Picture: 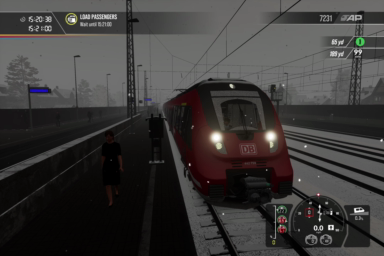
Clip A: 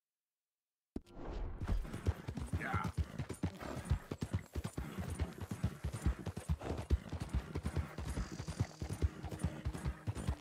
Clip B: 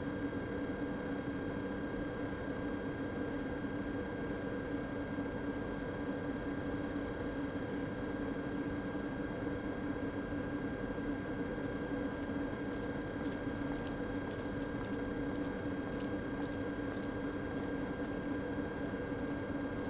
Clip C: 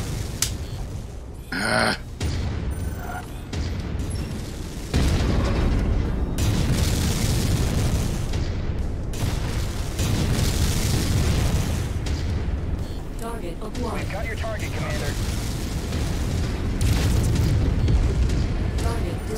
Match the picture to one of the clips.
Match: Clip B